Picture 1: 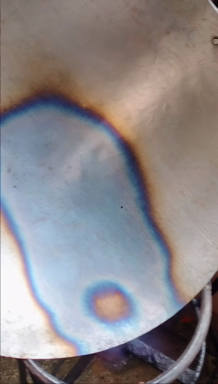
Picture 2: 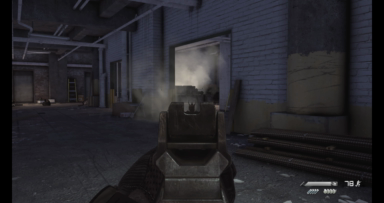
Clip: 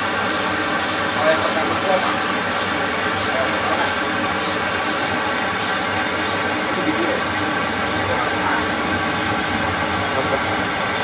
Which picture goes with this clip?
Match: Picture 1